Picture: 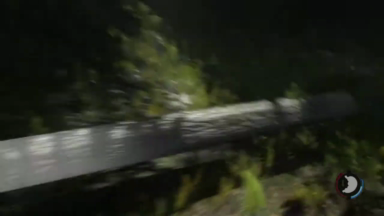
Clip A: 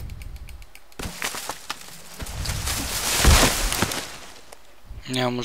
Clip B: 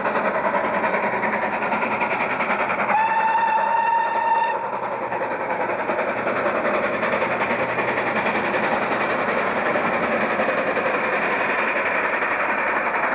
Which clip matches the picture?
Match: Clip A